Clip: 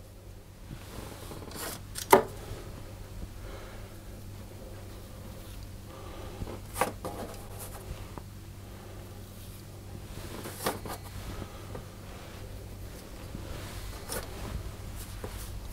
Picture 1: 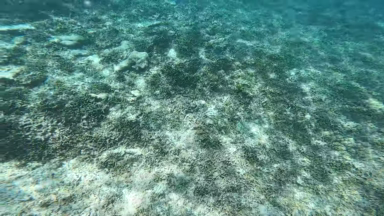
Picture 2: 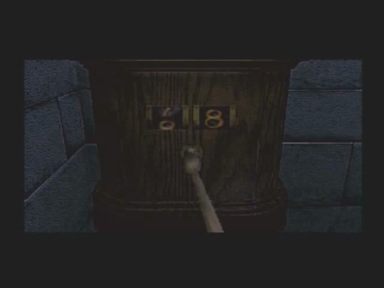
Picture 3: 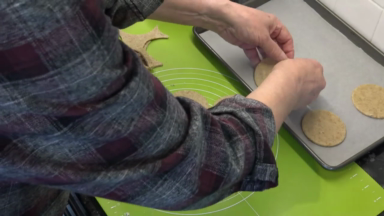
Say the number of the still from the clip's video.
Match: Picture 3